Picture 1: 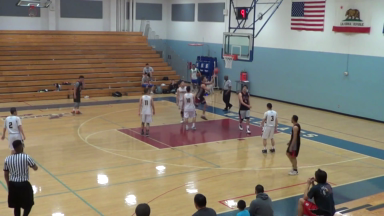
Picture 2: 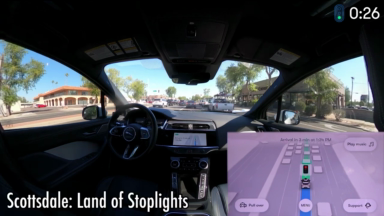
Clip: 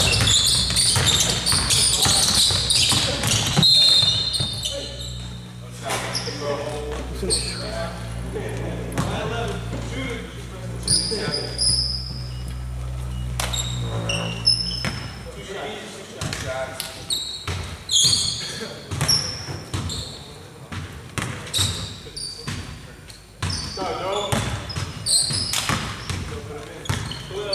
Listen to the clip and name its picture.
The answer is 1